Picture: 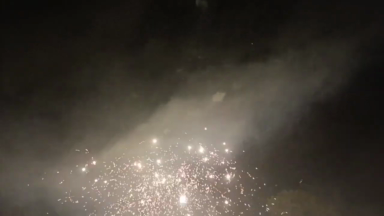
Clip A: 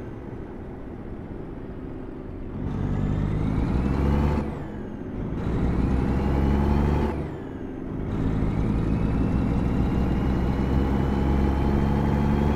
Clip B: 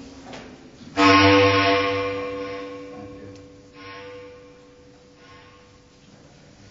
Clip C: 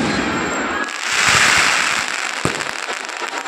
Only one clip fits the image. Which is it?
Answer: C